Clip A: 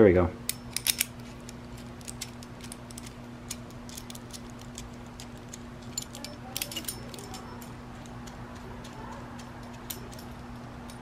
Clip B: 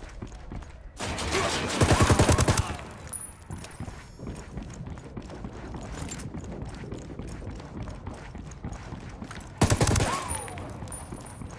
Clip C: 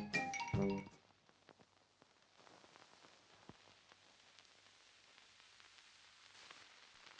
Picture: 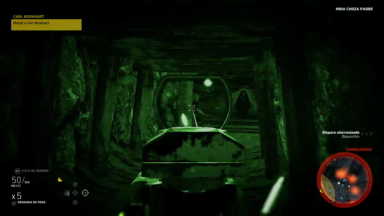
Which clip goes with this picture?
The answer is B